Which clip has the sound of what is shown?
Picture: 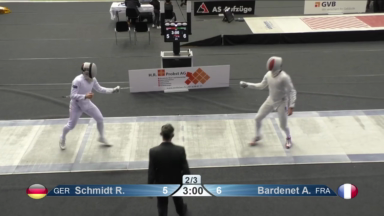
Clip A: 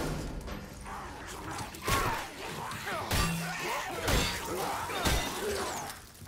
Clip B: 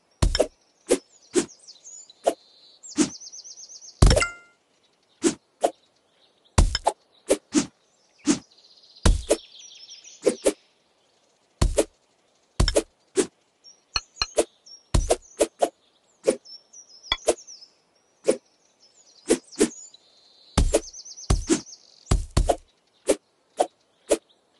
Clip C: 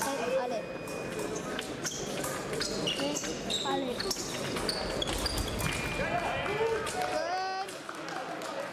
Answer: C